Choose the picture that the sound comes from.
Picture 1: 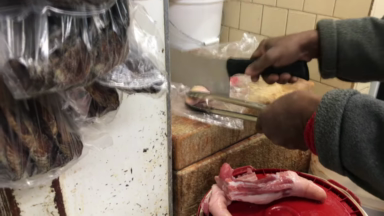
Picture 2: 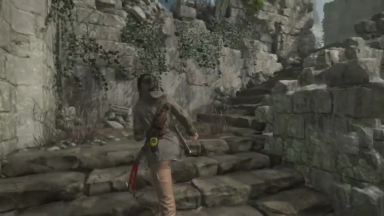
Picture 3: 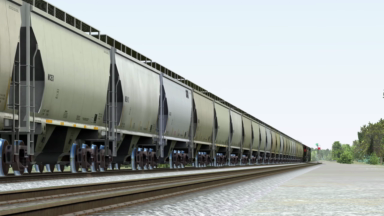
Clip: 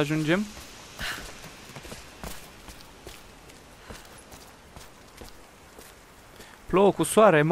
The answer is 2